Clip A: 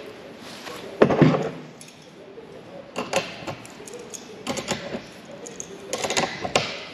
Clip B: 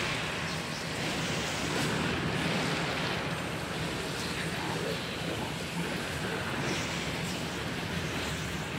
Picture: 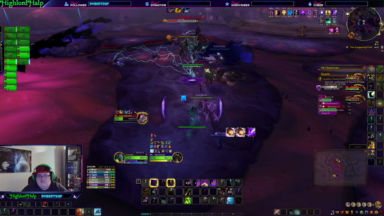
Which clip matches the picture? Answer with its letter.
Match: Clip B